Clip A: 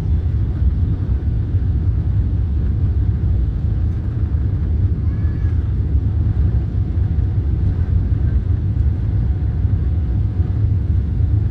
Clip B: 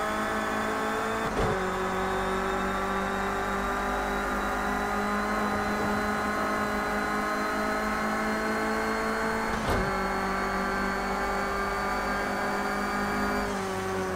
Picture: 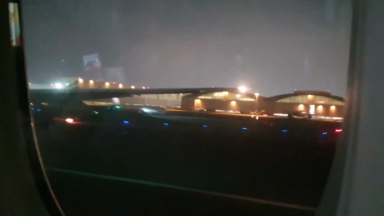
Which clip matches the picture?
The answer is A